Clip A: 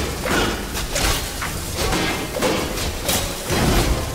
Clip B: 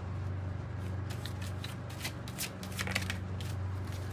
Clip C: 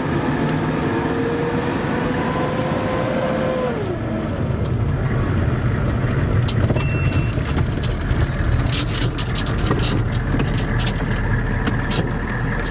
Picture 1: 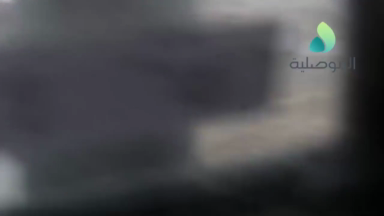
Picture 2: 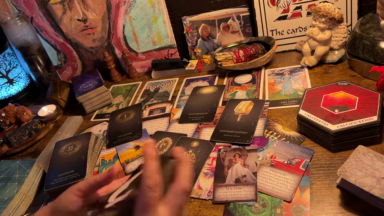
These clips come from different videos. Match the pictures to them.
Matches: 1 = C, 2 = B